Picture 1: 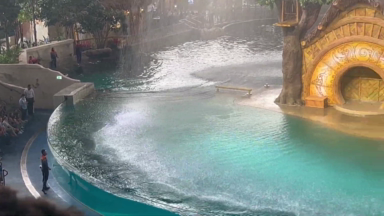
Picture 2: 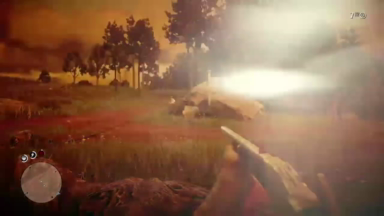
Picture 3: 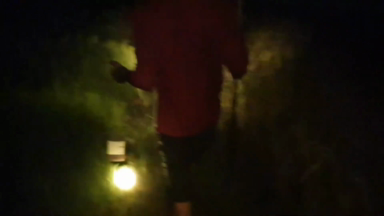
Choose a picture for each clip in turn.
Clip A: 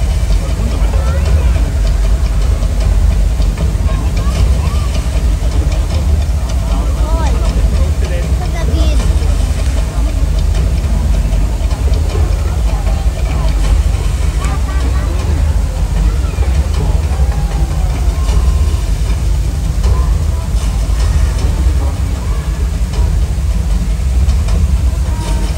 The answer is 1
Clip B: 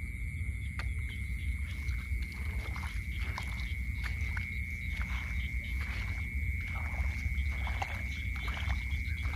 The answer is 3